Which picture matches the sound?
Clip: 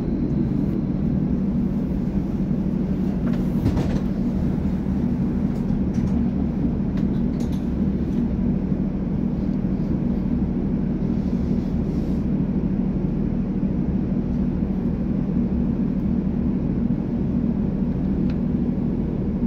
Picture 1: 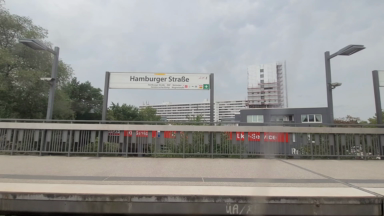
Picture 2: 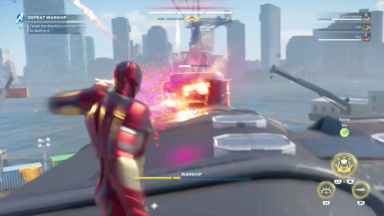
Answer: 1